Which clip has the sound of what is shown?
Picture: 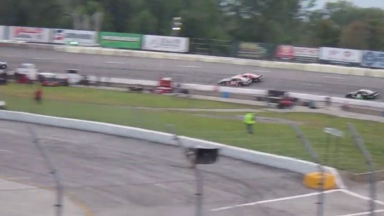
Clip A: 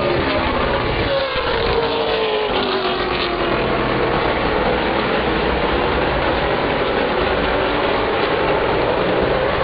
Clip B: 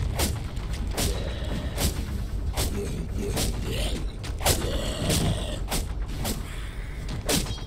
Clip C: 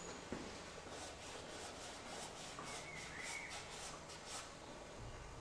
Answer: A